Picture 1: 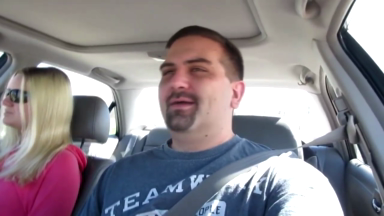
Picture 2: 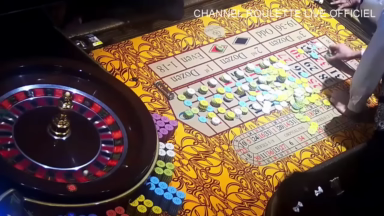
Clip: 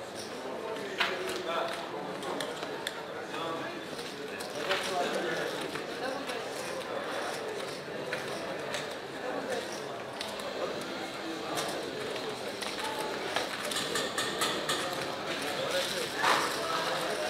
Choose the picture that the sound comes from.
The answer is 2